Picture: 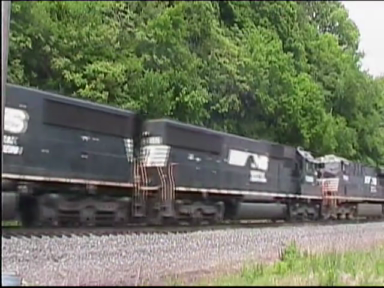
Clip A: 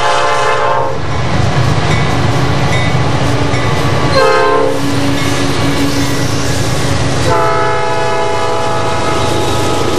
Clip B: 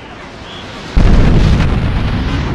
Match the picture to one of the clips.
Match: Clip A